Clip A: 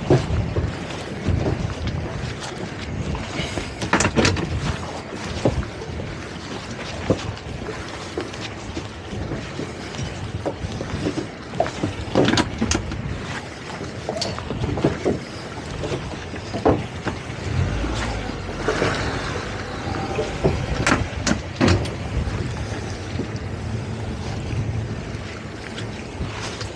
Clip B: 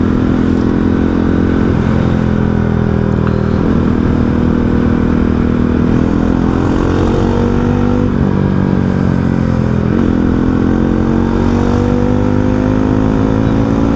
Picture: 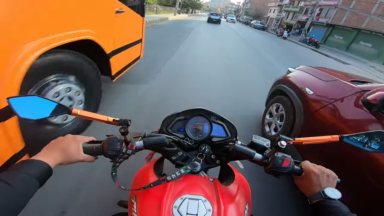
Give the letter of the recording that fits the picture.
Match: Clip B